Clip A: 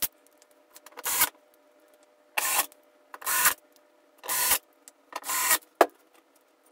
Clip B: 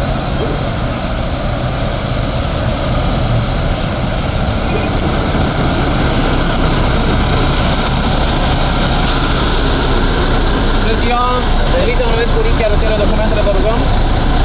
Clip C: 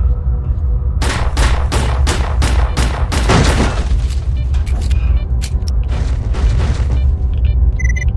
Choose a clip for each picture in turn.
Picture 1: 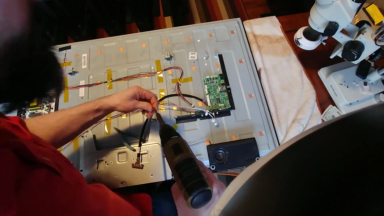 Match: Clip A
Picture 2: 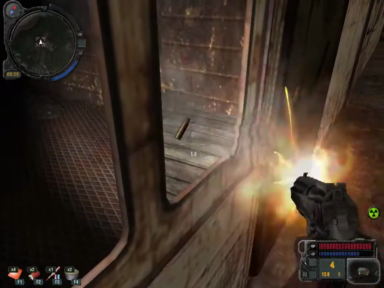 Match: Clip C